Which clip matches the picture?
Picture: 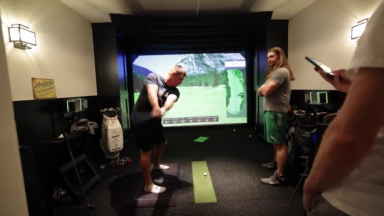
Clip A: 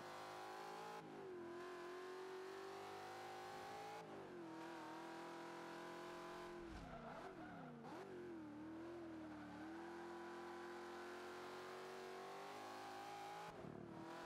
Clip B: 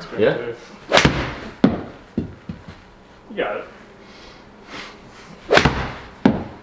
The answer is B